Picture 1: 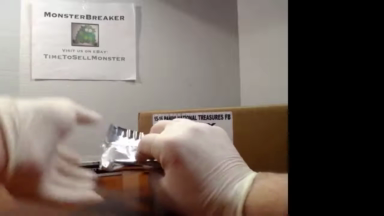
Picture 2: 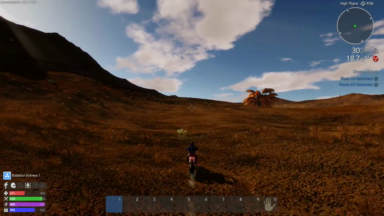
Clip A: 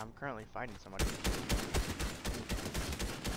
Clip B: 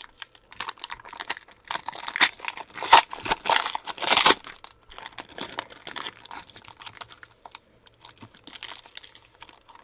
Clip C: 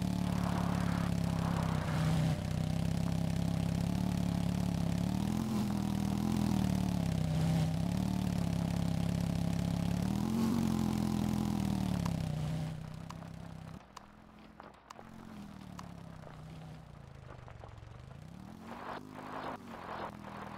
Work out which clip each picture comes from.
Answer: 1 B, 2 C